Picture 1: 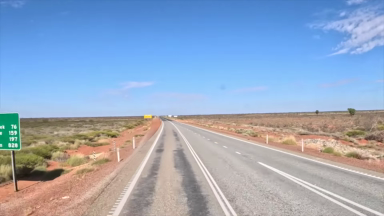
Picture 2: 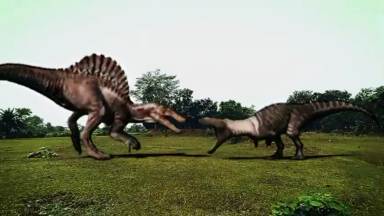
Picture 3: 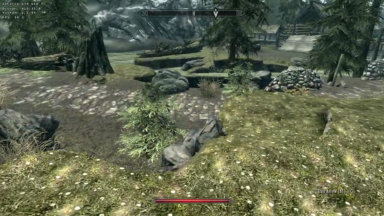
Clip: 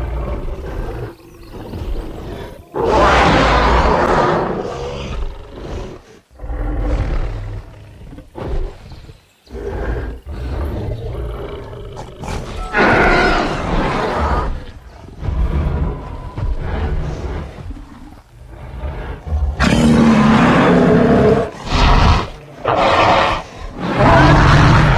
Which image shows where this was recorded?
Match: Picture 2